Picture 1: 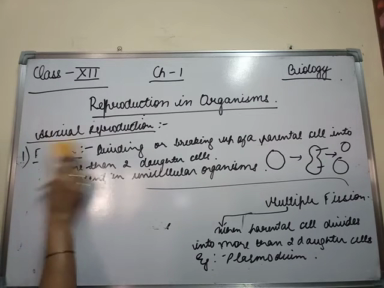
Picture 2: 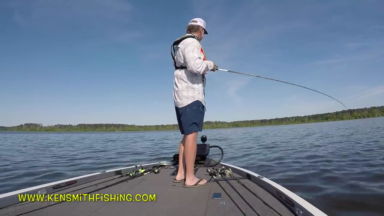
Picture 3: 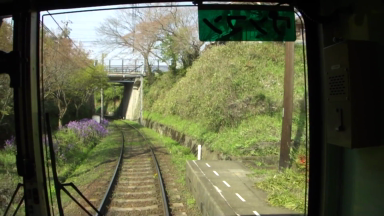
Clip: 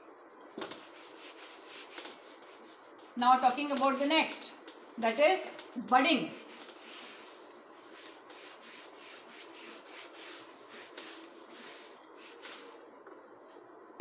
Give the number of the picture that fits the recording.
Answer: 1